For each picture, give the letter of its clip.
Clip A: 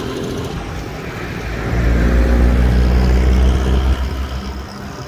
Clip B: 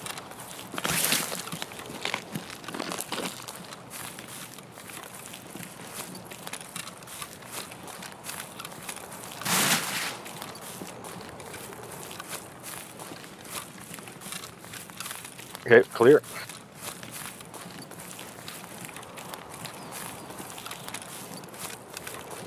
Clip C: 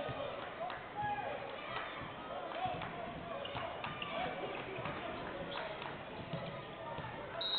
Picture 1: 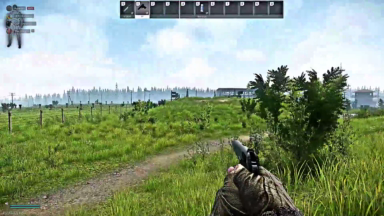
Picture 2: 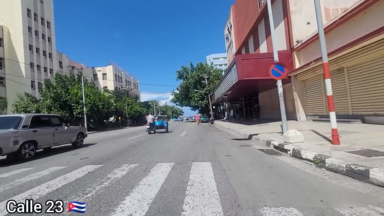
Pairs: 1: B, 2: A